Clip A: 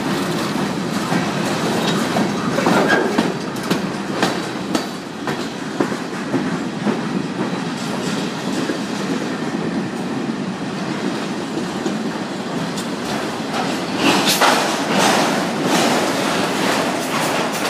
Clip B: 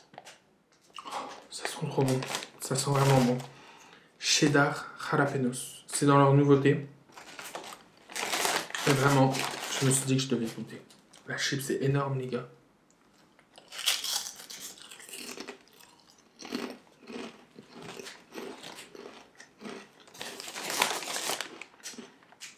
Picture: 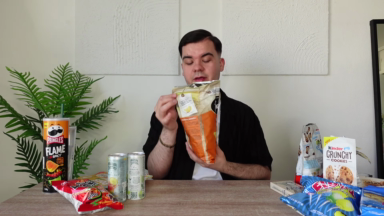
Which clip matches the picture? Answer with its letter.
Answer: B